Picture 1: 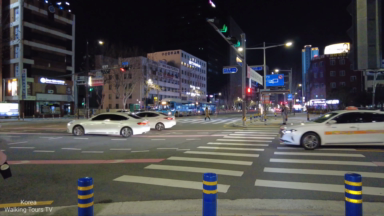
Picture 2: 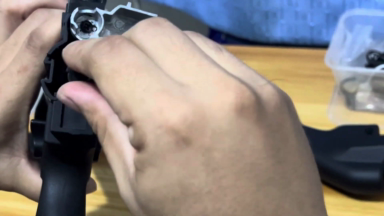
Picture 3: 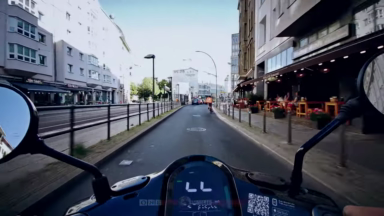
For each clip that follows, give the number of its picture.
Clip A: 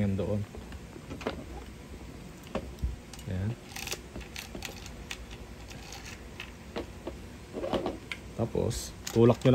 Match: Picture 2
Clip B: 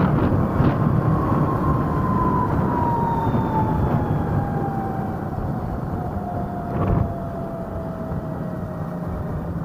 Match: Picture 3